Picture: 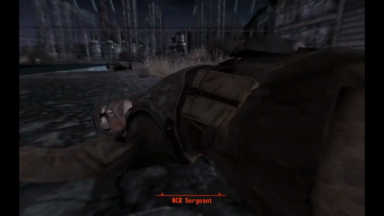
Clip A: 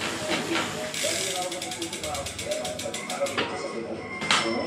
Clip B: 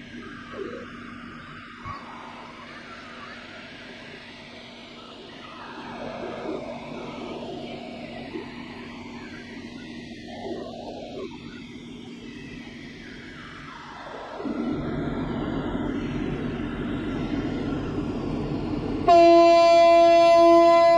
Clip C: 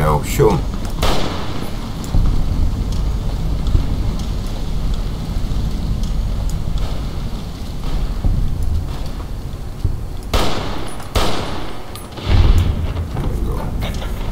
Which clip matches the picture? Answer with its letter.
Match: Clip C